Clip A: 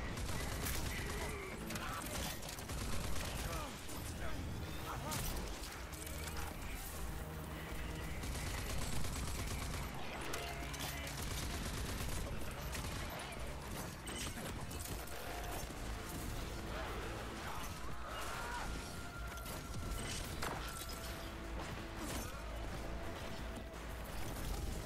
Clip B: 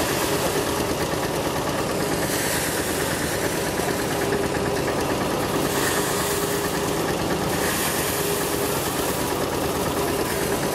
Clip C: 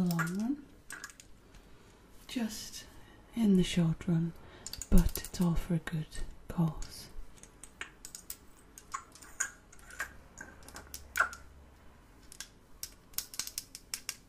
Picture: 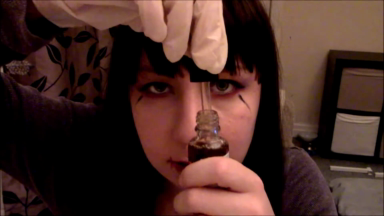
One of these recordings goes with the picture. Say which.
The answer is C